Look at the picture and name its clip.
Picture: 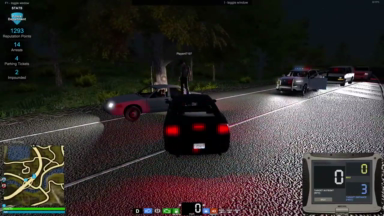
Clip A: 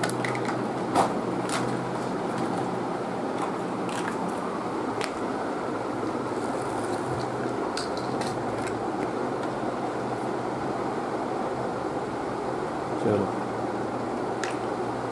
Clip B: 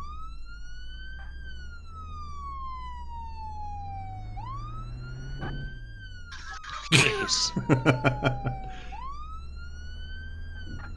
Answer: B